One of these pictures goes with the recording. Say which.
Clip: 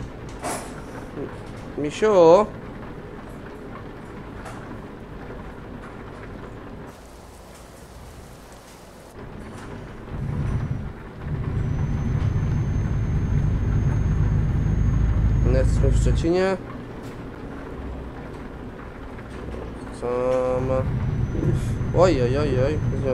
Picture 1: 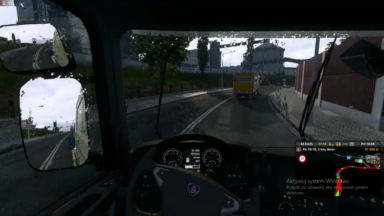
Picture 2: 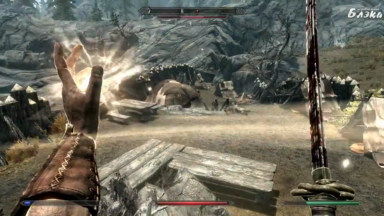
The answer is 1